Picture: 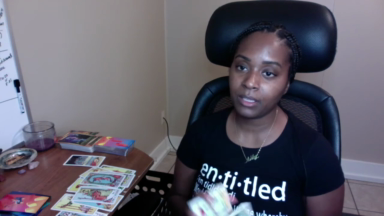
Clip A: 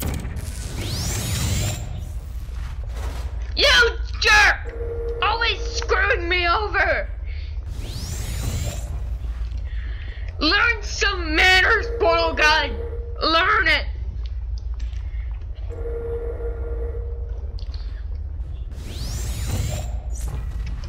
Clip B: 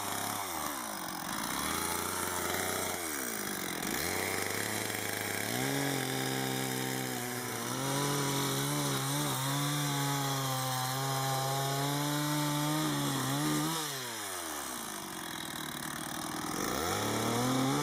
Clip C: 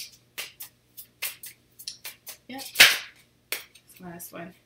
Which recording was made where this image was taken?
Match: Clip C